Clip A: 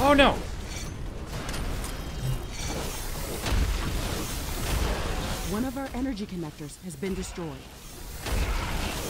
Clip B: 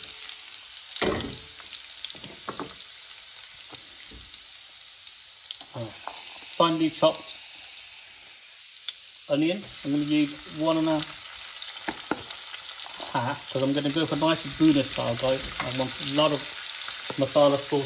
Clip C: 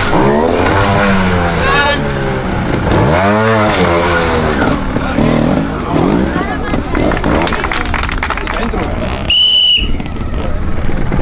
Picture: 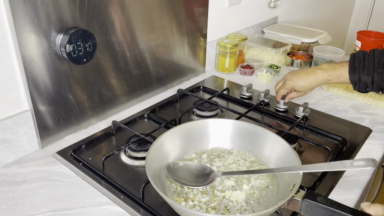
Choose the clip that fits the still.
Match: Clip B